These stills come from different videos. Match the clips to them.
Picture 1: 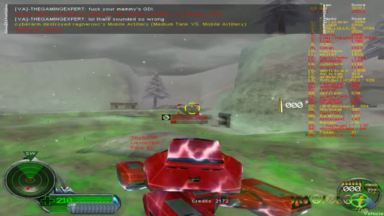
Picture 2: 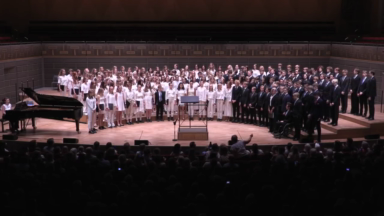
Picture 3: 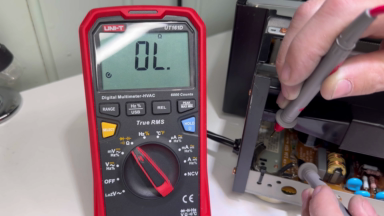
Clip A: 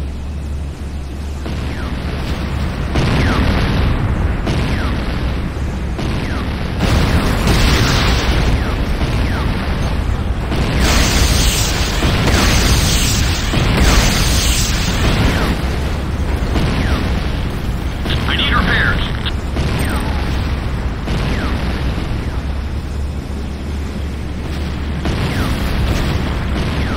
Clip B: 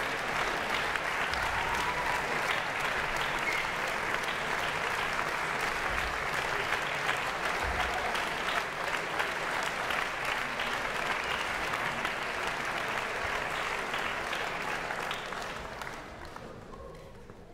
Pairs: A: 1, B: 2